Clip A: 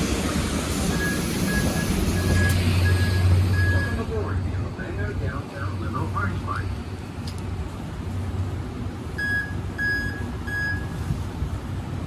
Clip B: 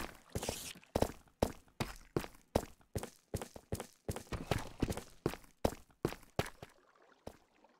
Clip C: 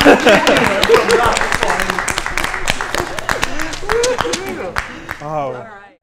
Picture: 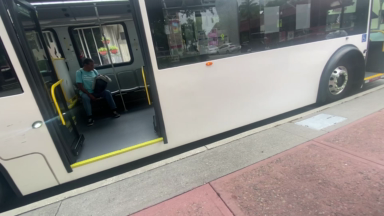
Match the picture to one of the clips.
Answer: A